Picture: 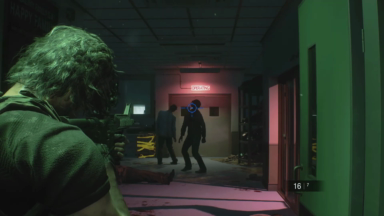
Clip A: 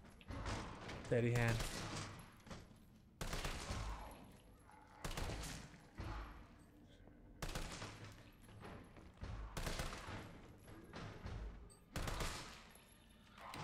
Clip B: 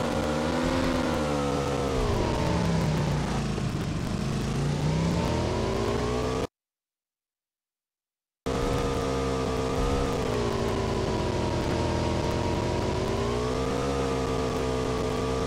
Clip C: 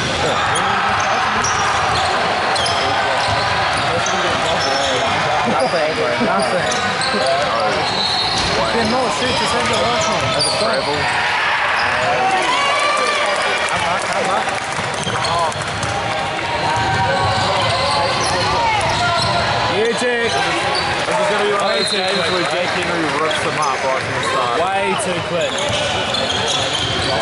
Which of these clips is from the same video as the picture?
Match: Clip A